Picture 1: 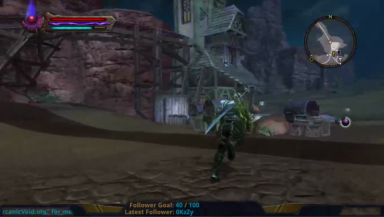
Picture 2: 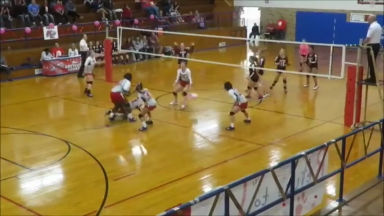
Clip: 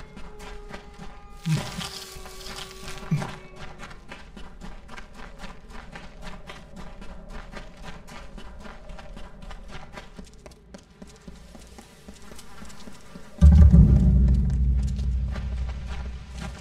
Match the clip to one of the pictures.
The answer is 1